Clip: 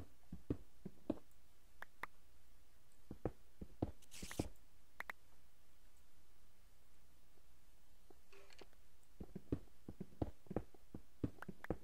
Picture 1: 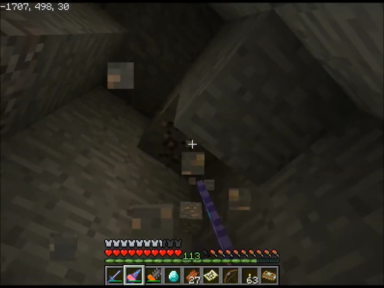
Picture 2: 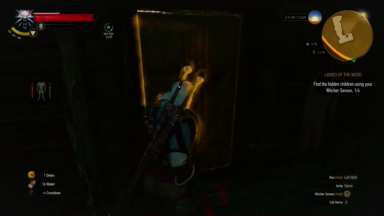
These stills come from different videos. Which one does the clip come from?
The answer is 1